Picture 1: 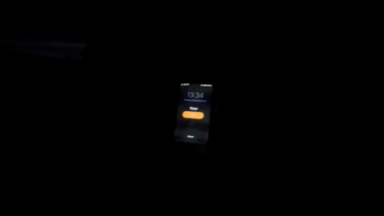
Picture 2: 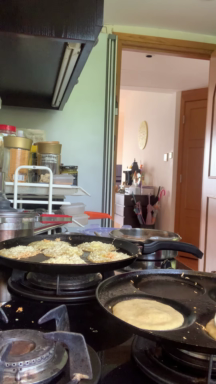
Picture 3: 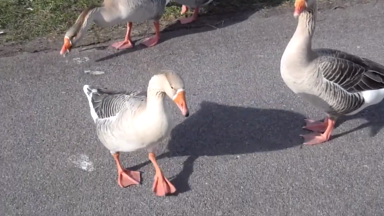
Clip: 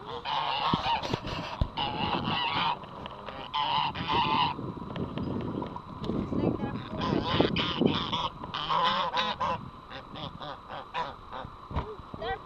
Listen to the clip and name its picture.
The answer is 3